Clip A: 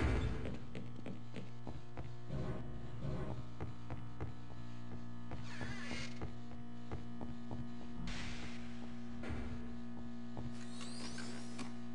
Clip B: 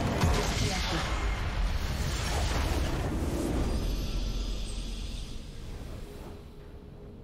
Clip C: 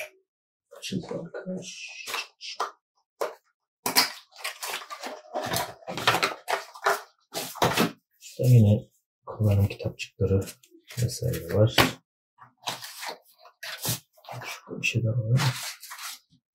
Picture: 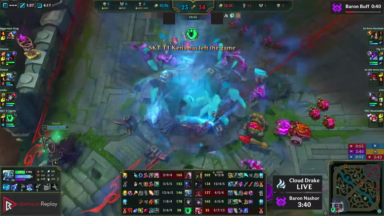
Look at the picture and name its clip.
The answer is B